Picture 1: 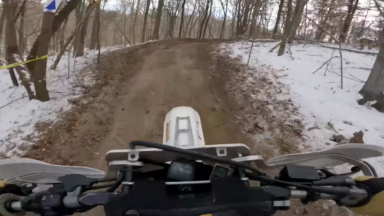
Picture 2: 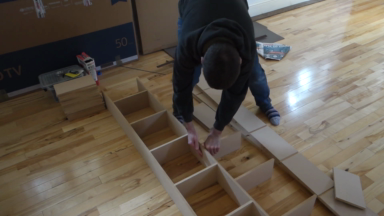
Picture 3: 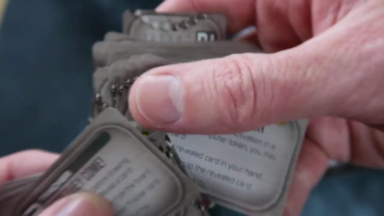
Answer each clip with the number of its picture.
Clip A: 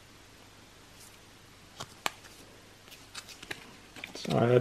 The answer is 3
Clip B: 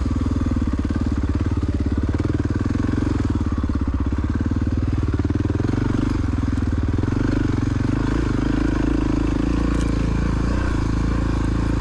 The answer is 1